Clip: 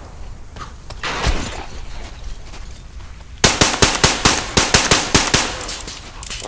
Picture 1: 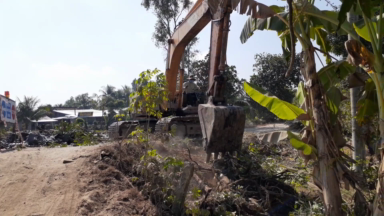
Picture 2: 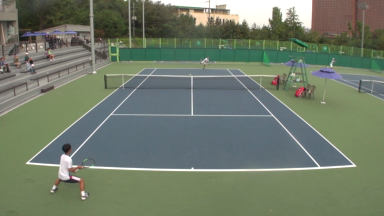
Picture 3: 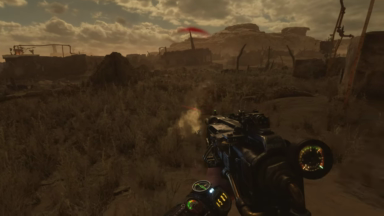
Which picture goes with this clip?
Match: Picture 3